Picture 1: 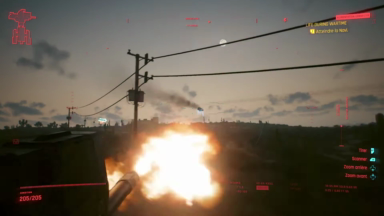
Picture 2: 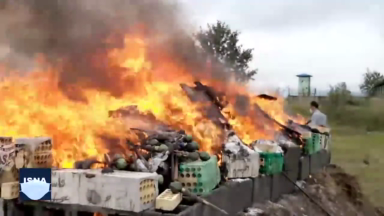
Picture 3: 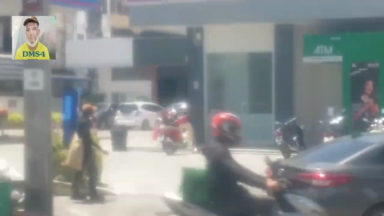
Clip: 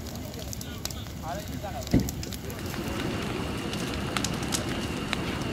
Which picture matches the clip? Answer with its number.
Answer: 2